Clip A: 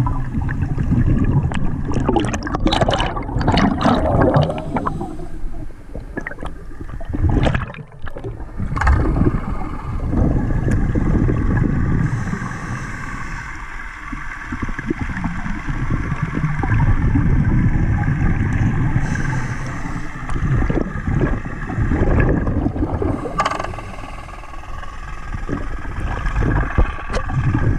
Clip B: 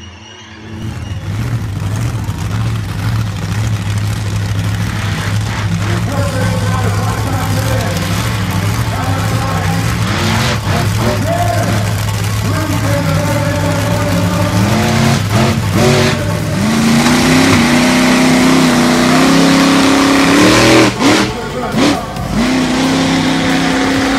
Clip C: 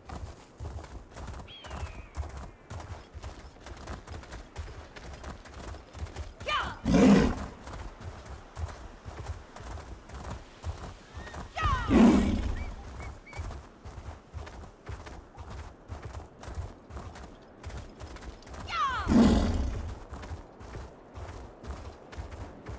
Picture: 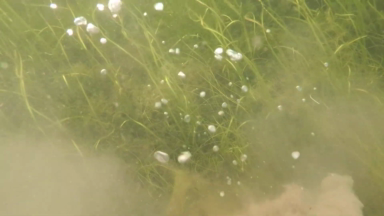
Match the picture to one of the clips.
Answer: A